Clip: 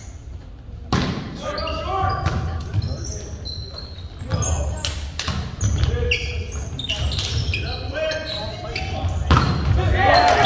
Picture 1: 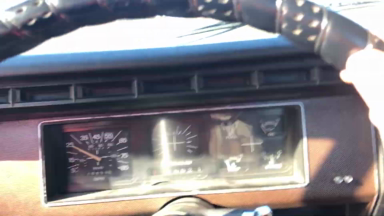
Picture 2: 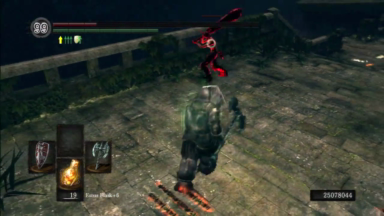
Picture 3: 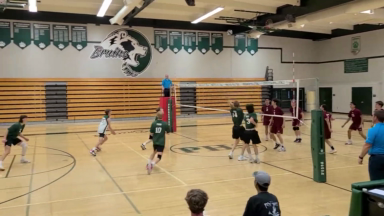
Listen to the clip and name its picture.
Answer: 3